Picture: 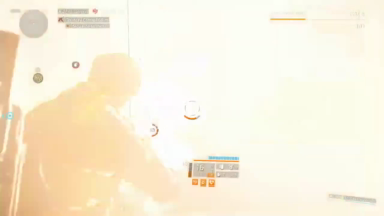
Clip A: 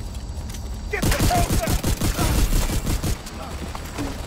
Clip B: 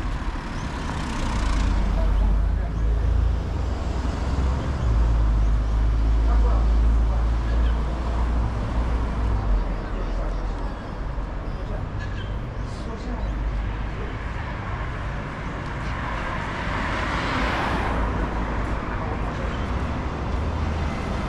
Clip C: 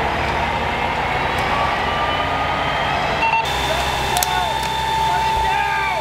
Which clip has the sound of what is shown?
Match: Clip A